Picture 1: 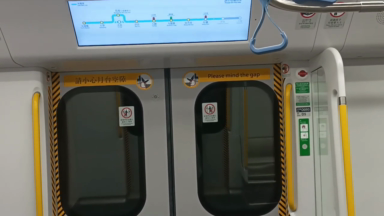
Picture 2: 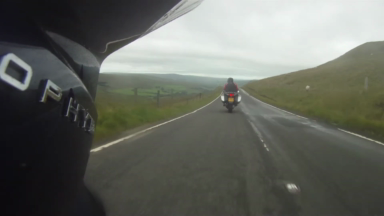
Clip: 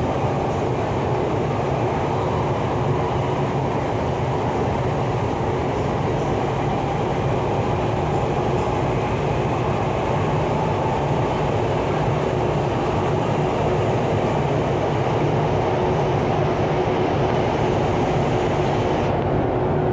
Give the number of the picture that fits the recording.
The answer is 1